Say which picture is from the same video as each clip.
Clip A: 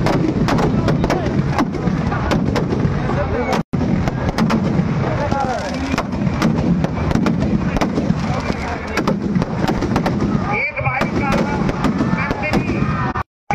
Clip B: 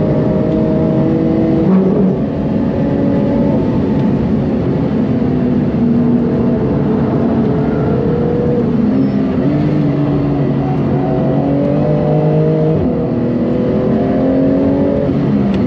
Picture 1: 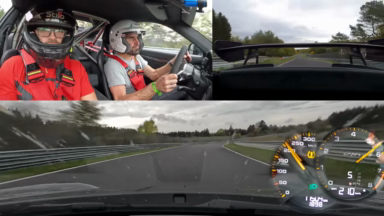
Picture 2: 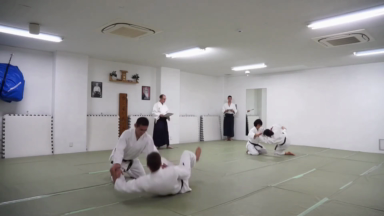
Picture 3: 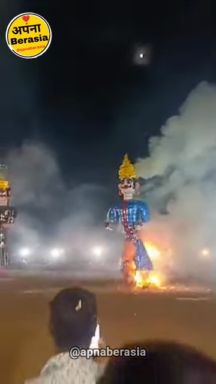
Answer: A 3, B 1